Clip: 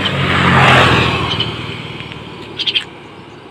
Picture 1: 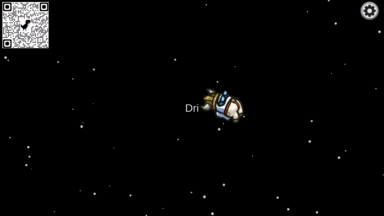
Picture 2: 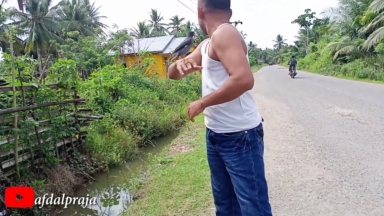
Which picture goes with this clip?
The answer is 2